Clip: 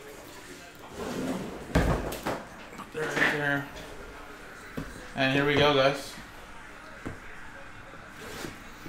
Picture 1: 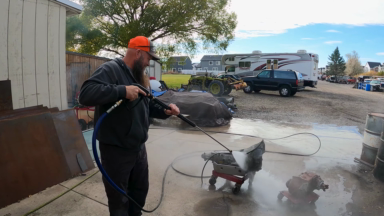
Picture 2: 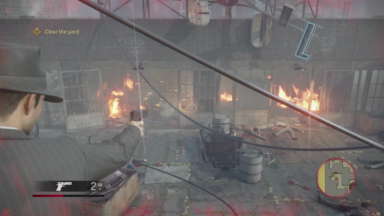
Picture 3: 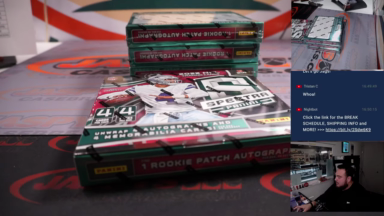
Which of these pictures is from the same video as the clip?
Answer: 3